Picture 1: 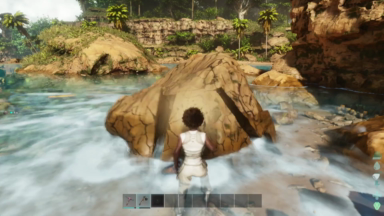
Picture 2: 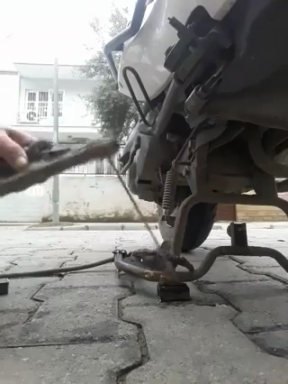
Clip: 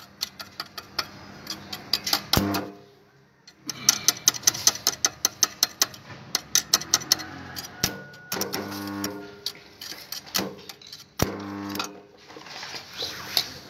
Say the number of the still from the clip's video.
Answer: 2